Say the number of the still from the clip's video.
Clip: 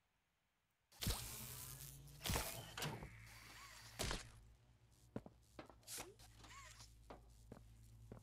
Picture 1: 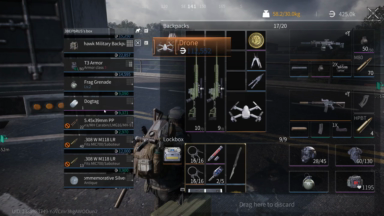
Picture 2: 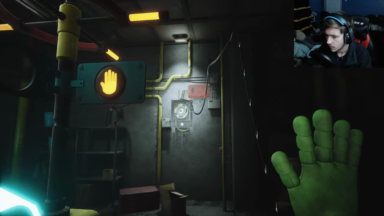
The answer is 2